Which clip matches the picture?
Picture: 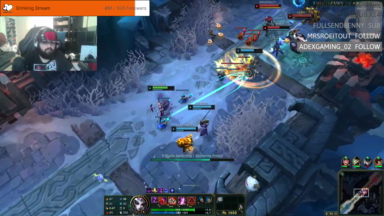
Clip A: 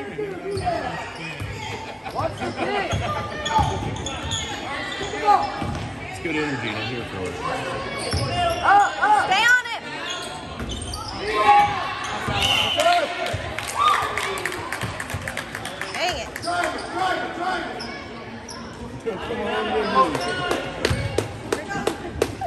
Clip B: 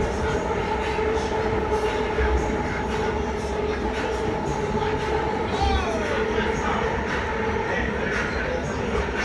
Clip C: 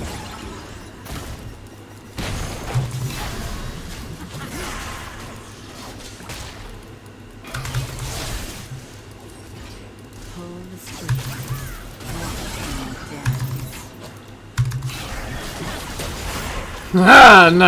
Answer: C